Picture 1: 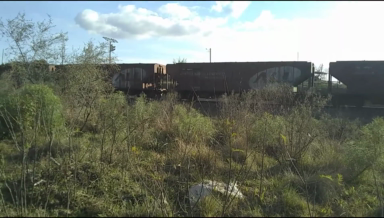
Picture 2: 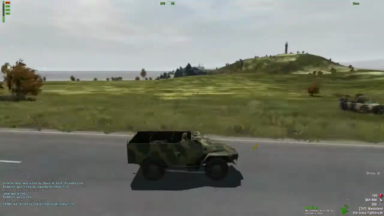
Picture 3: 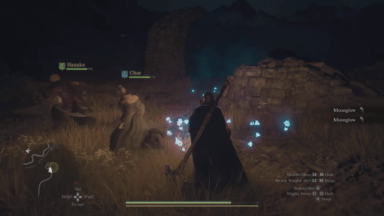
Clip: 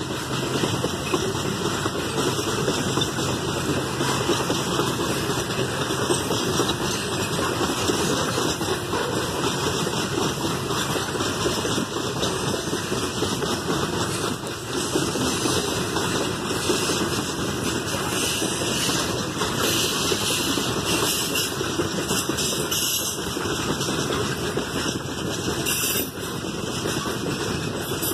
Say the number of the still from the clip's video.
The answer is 1